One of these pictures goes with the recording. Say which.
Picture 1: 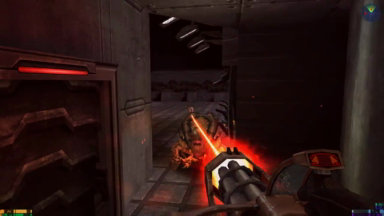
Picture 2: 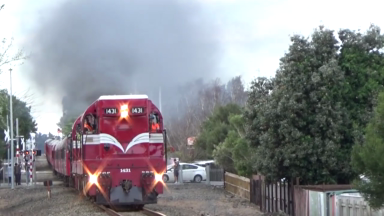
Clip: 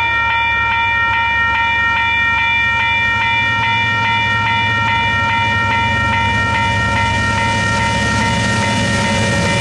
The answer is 2